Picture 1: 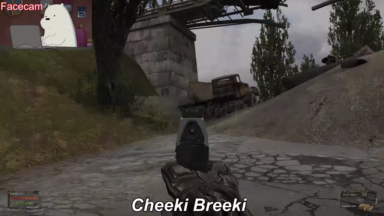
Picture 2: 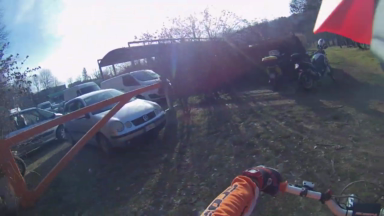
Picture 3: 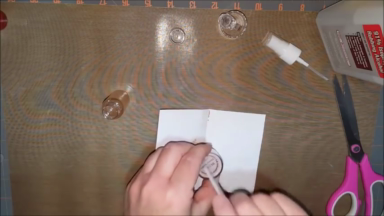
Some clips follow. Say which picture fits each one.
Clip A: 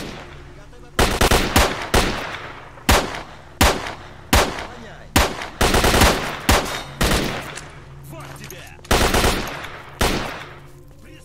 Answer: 1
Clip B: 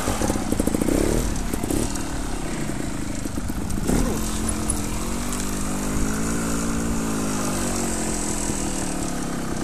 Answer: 2